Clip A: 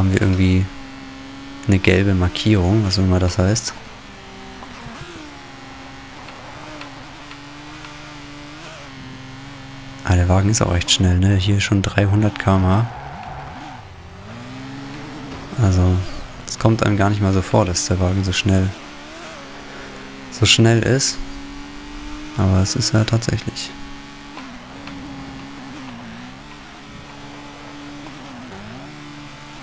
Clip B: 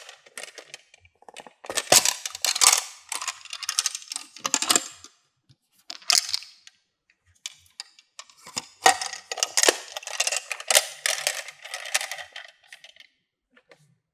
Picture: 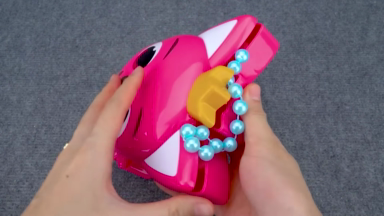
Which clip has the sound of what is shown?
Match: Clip B